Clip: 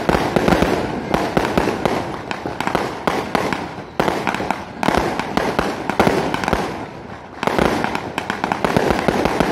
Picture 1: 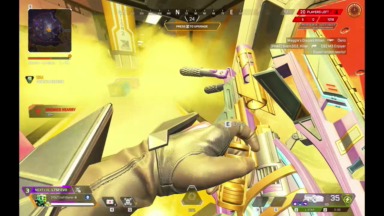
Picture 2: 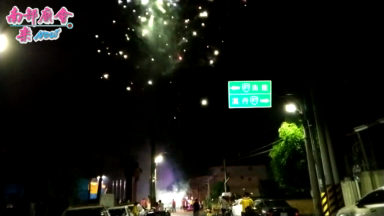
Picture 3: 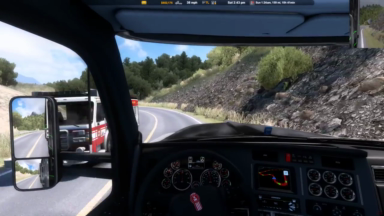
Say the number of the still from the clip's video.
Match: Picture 2